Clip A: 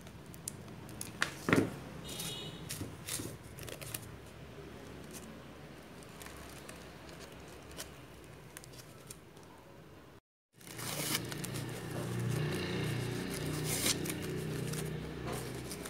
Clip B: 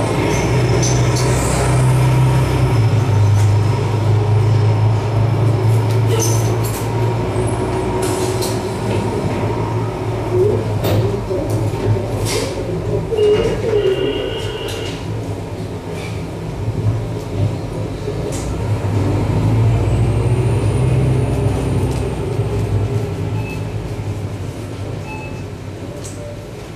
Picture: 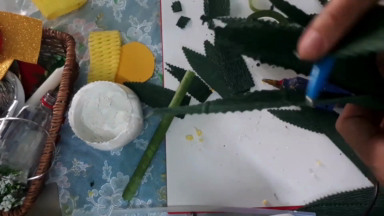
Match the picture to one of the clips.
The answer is A